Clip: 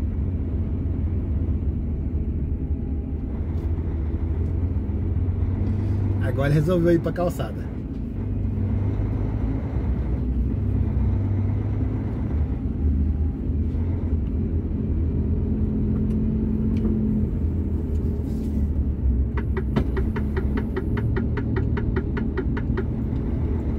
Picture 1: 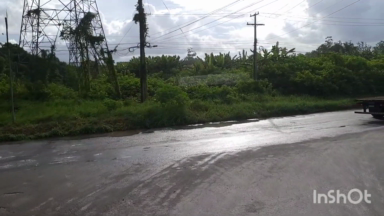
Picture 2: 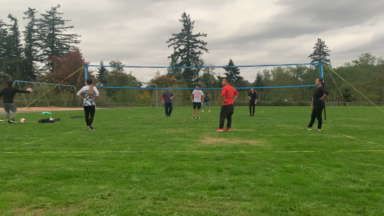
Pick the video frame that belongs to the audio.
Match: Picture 1